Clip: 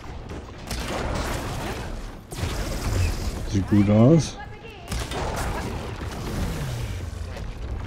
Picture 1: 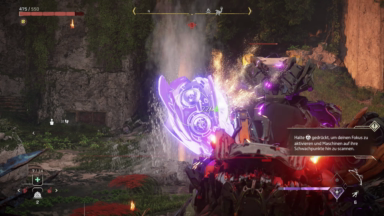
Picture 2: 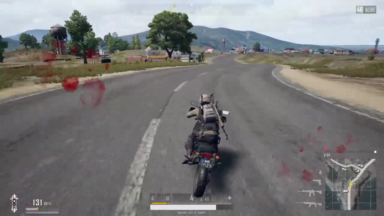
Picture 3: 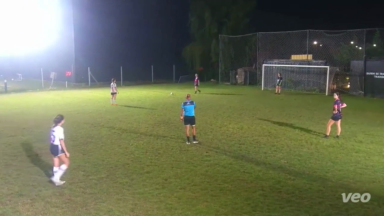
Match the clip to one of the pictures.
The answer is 1